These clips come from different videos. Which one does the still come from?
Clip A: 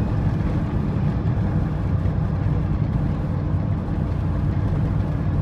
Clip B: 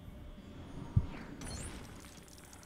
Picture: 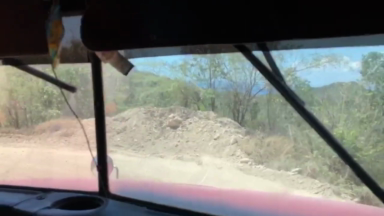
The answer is A